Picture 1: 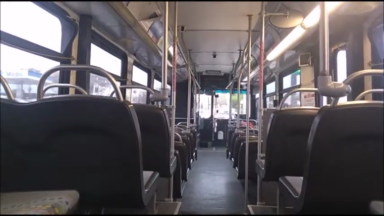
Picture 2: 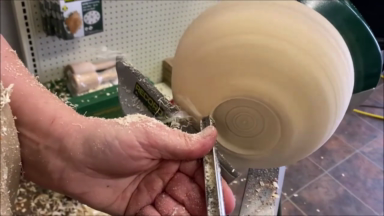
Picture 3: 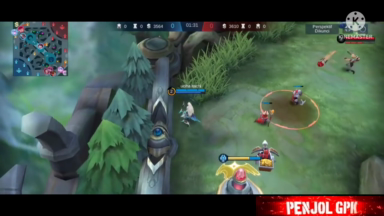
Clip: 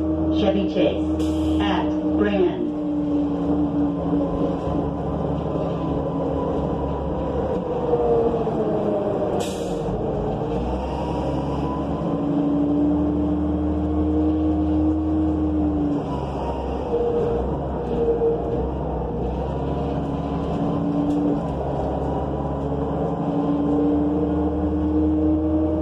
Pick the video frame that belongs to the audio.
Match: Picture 1